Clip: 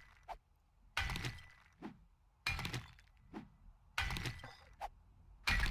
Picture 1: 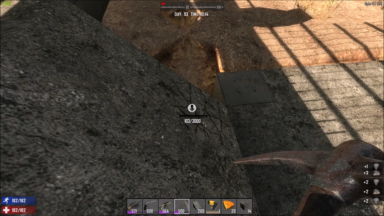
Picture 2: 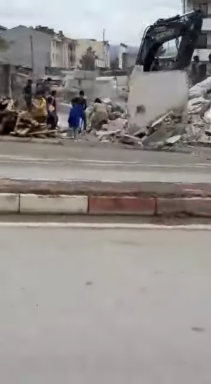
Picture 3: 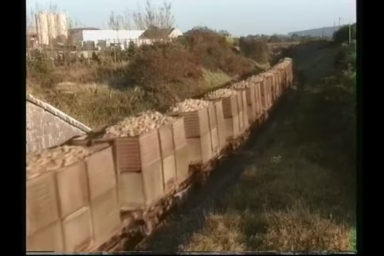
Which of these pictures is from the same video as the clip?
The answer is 1